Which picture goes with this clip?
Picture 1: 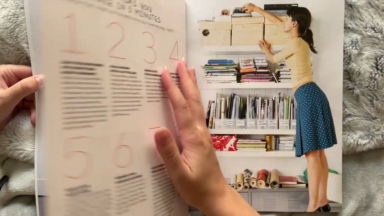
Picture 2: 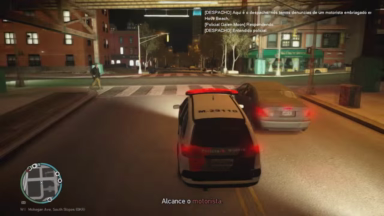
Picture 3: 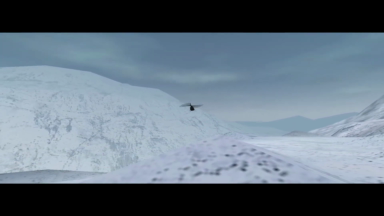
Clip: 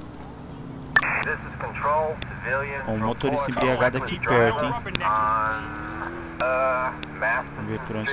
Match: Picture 2